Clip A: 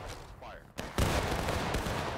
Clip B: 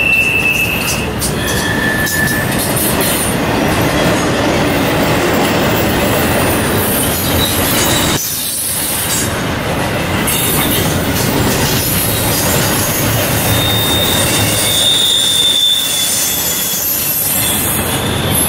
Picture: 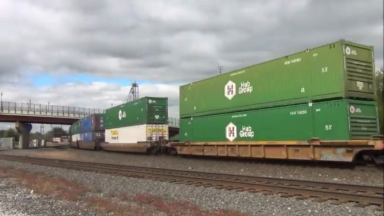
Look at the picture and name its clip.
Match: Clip B